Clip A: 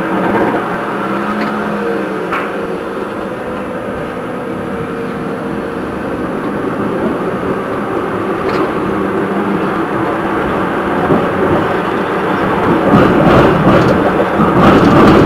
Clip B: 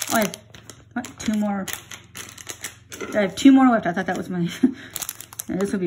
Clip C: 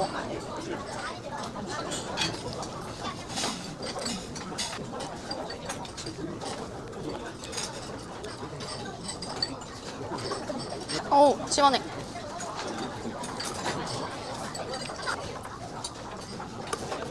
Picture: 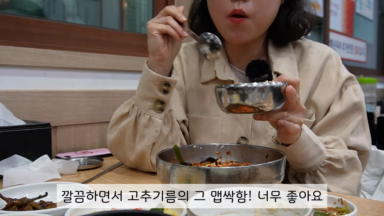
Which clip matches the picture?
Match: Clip C